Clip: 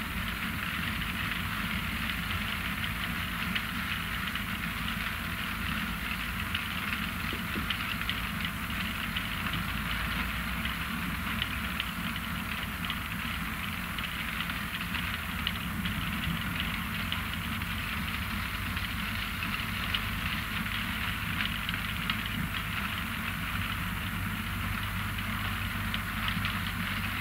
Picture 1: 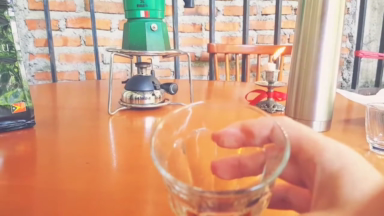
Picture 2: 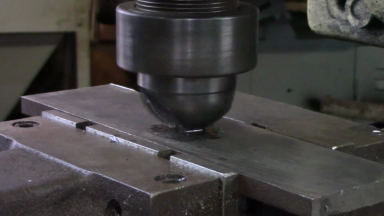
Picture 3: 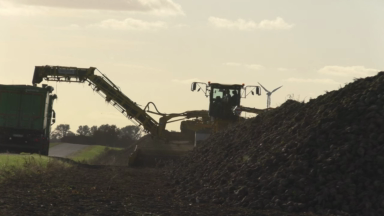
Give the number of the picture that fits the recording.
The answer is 3